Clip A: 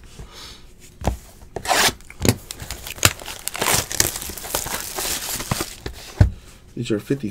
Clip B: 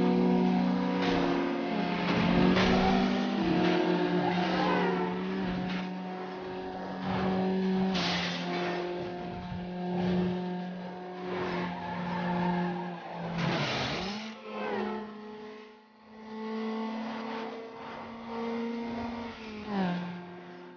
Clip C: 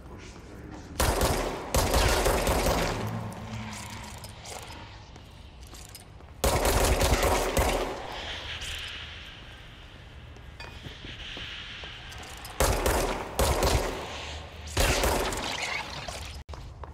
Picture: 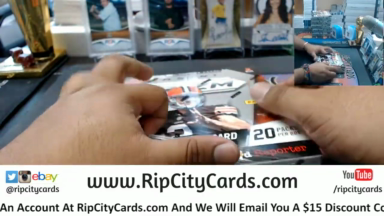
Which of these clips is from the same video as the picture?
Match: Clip A